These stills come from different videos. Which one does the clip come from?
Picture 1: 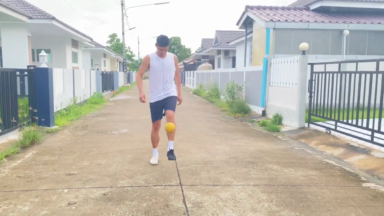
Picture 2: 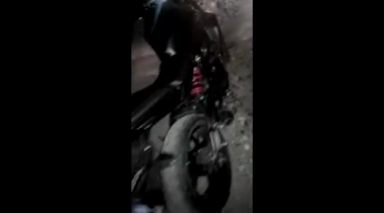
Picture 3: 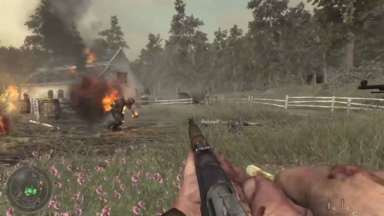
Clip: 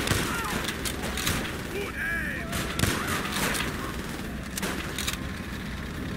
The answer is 3